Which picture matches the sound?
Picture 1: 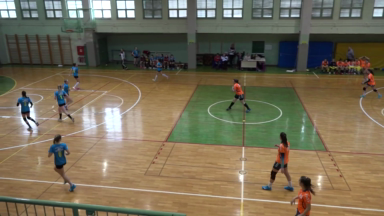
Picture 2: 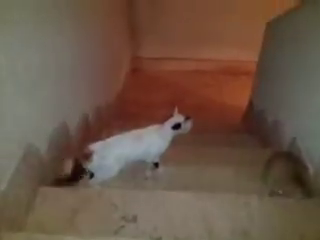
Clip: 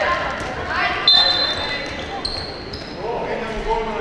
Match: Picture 1